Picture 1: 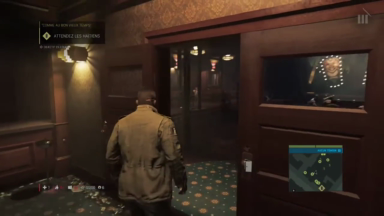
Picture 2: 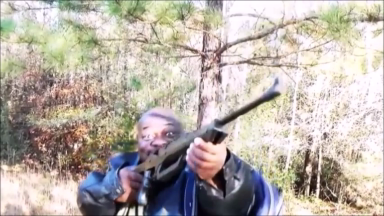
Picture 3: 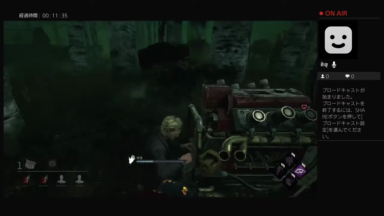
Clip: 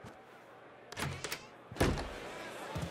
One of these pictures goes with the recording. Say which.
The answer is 1